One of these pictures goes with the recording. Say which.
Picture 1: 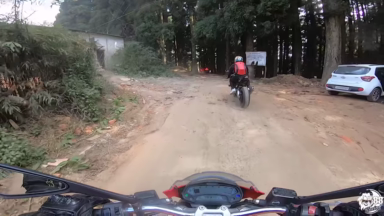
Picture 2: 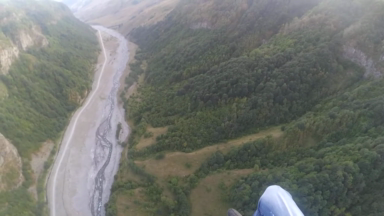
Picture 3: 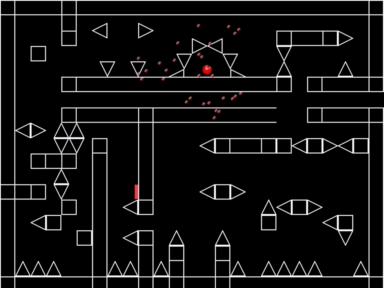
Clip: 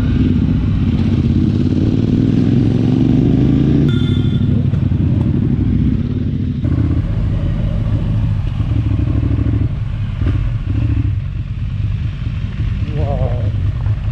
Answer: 1